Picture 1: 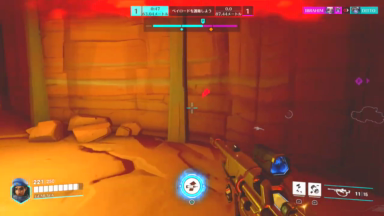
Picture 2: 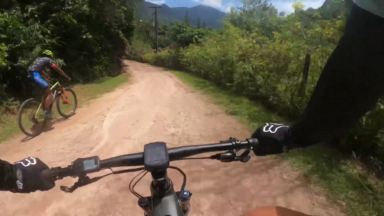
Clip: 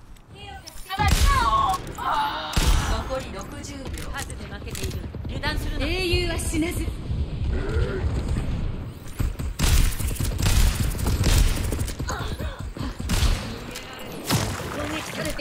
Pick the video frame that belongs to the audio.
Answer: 1